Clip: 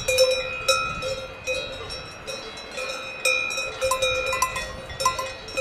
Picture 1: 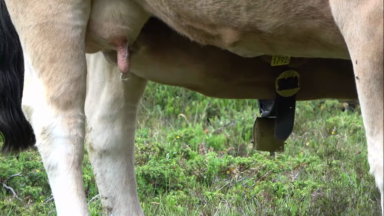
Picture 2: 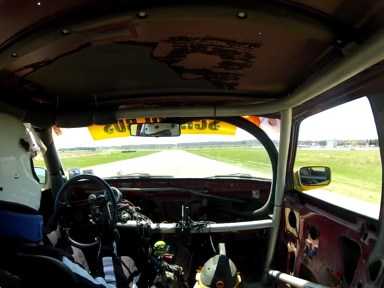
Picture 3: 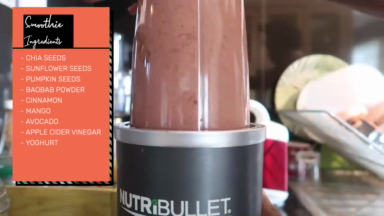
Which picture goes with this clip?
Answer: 1